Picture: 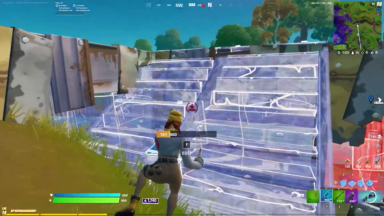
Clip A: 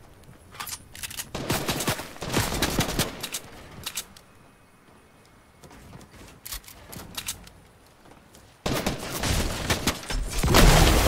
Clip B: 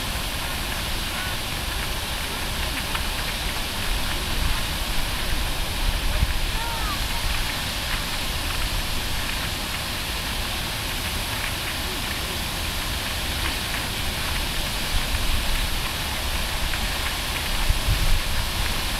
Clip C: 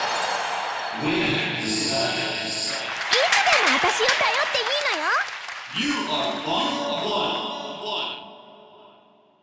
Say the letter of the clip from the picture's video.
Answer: A